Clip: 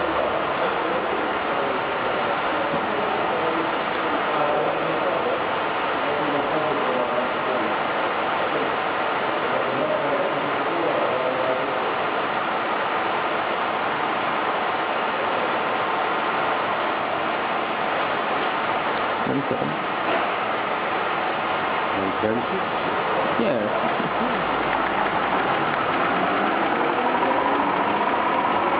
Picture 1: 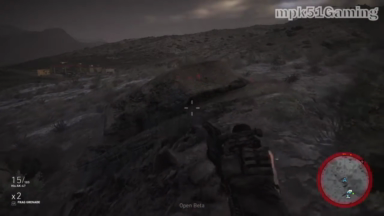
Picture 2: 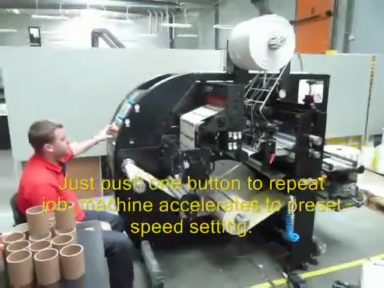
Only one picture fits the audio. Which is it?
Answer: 2